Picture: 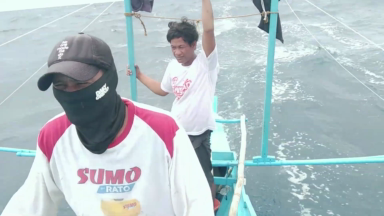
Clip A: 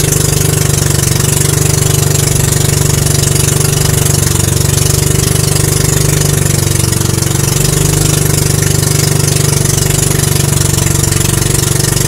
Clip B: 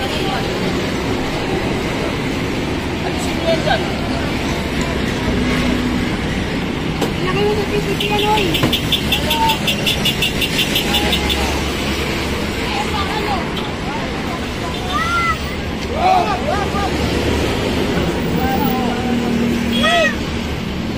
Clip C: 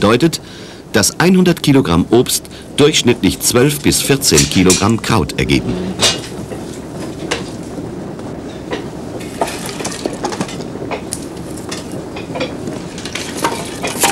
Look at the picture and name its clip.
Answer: A